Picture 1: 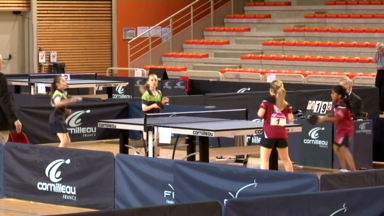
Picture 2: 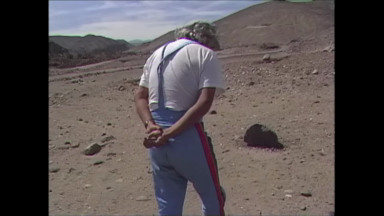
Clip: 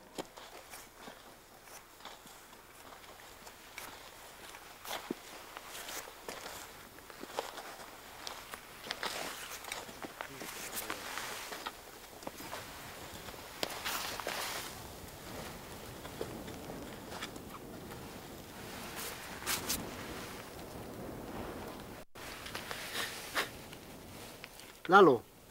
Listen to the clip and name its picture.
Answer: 2